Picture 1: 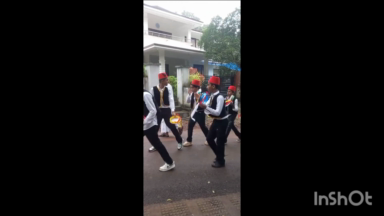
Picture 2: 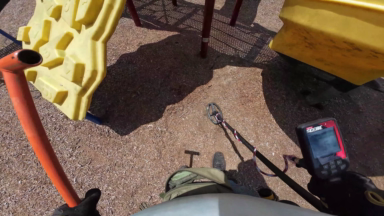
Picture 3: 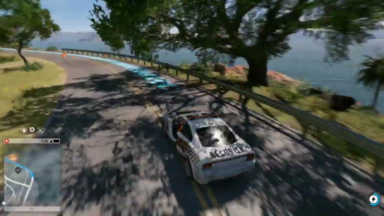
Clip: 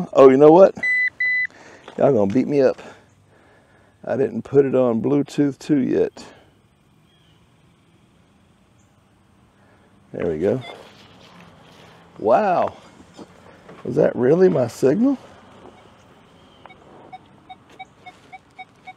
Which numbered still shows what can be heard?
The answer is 2